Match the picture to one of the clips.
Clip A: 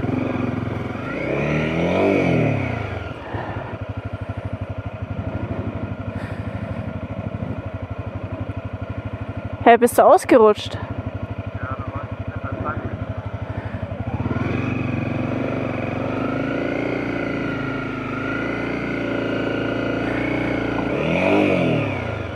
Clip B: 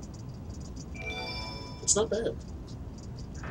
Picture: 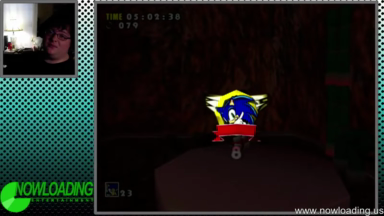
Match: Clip B